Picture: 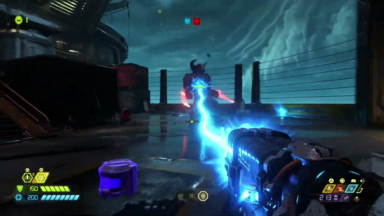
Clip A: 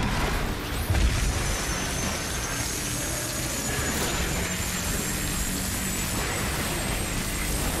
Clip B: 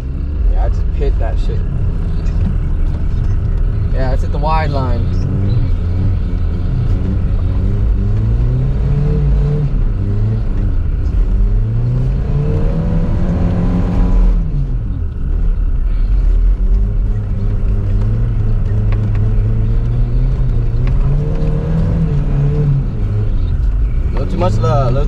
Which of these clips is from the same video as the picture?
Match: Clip A